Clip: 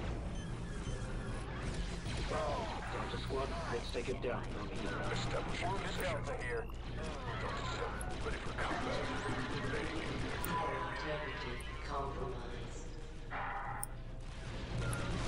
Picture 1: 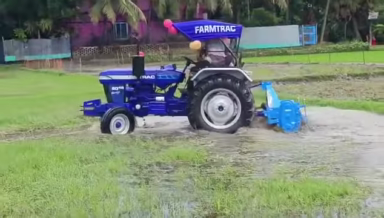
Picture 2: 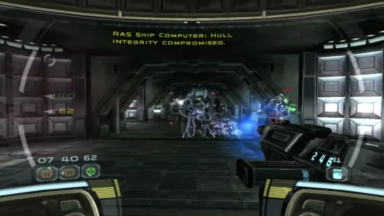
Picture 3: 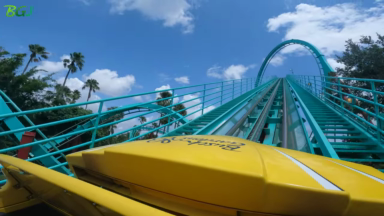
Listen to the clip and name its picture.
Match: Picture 2